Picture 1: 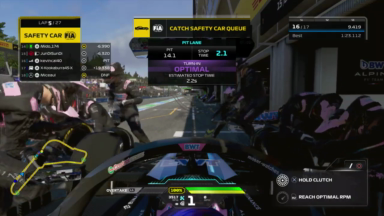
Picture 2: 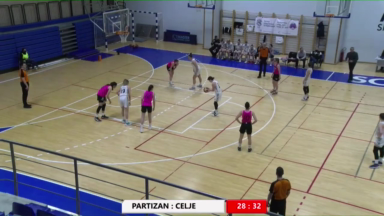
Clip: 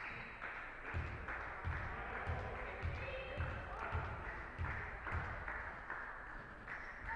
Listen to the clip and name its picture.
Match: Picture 2